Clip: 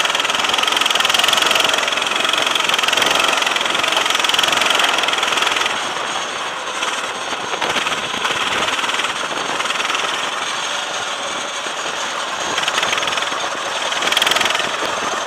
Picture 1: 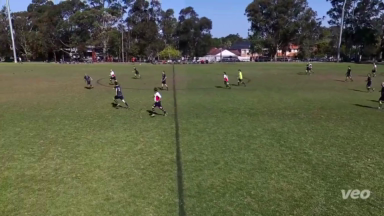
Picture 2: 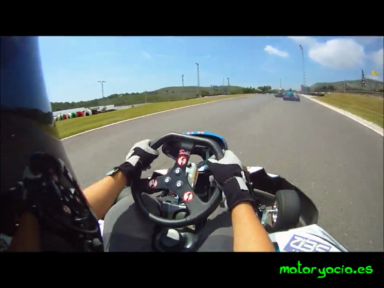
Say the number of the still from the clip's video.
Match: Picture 2